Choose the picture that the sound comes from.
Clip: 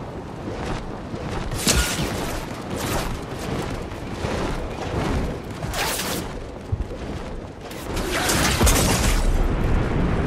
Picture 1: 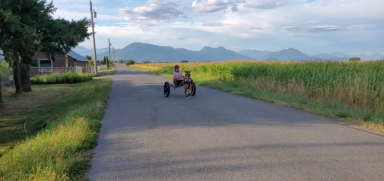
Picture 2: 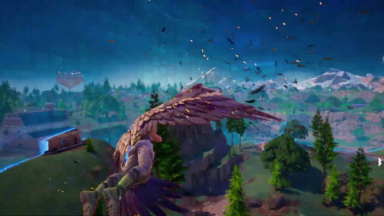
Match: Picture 2